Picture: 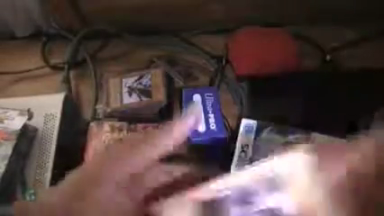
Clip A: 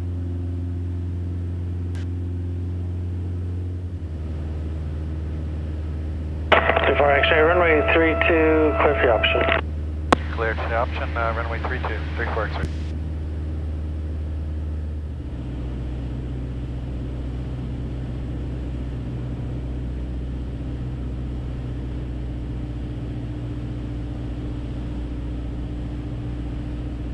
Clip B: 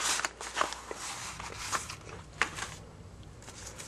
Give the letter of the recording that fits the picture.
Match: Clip B